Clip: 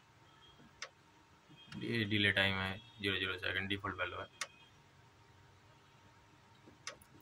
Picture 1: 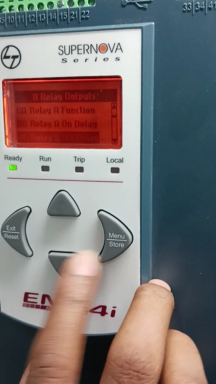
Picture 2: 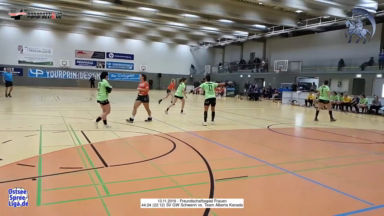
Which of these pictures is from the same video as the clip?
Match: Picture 1